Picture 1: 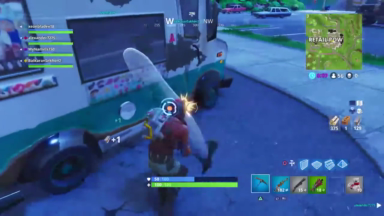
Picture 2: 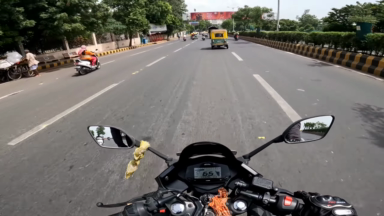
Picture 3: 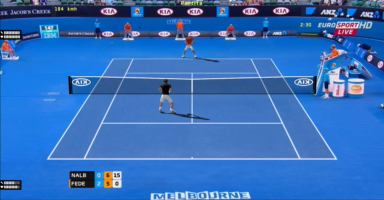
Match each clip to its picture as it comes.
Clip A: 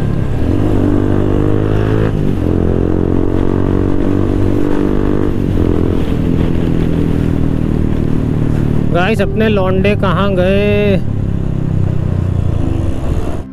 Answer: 2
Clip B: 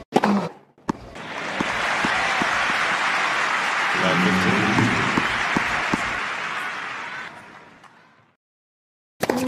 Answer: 3